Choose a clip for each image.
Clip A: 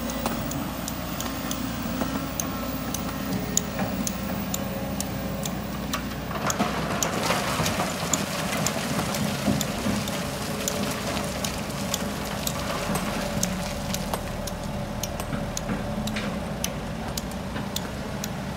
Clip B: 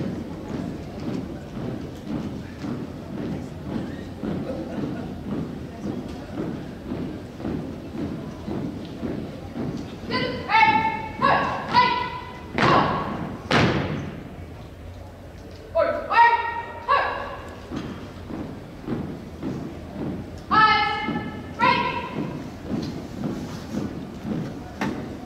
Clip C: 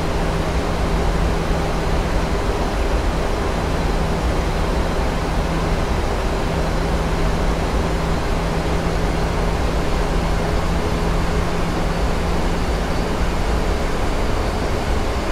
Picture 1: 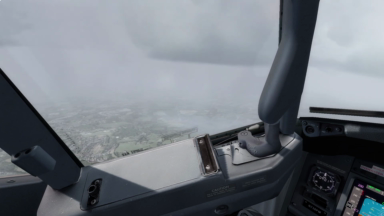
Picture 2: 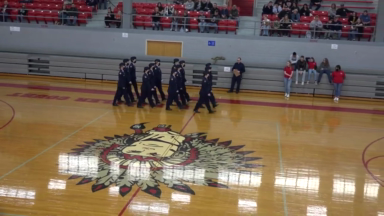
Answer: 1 C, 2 B